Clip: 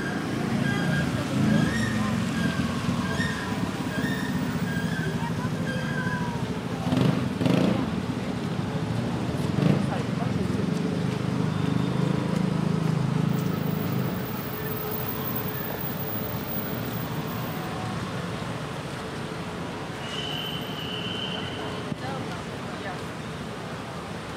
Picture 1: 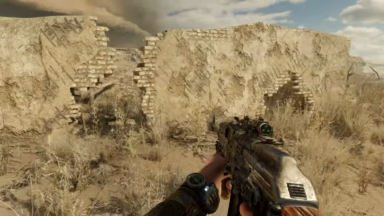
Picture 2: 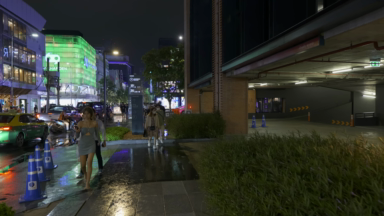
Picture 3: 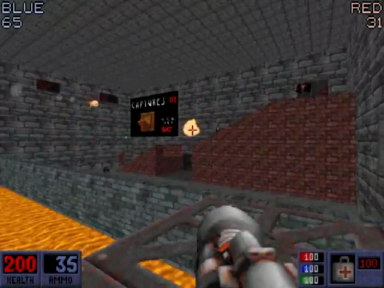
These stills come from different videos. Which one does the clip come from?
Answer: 2